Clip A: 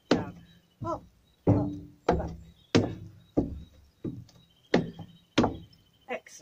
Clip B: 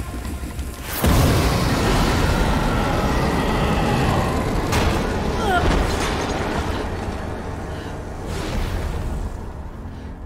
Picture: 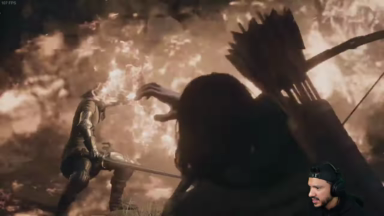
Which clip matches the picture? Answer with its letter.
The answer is B